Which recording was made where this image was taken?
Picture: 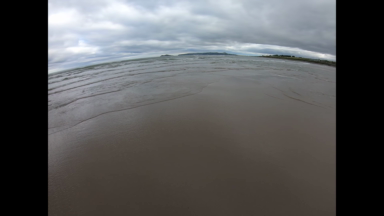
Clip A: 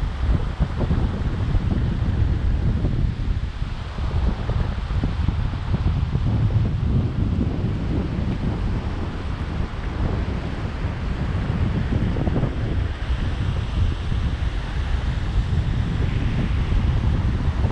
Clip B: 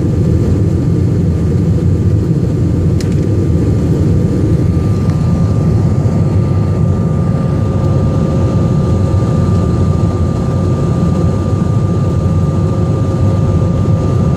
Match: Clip A